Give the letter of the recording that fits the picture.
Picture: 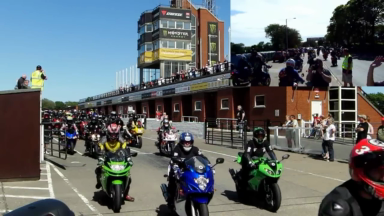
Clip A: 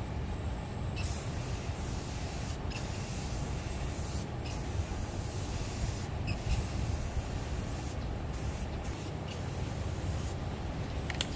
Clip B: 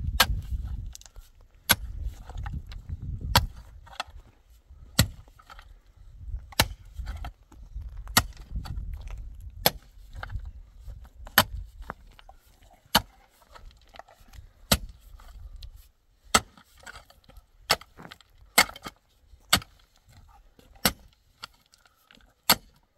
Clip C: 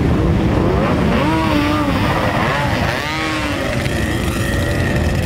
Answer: C